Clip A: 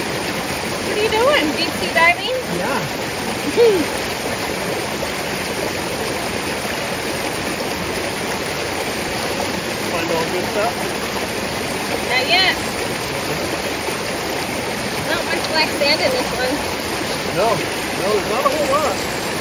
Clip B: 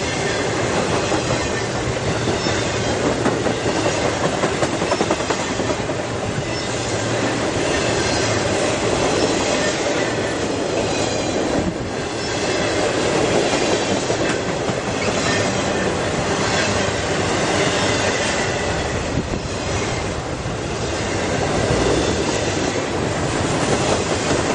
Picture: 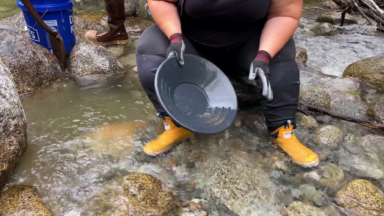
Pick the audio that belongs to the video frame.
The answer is A